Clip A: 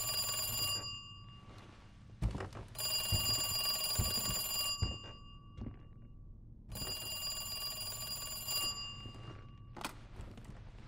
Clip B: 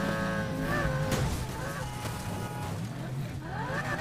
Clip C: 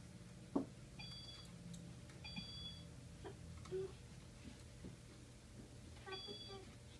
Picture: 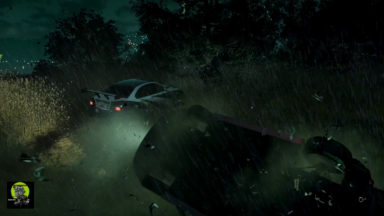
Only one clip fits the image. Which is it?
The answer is B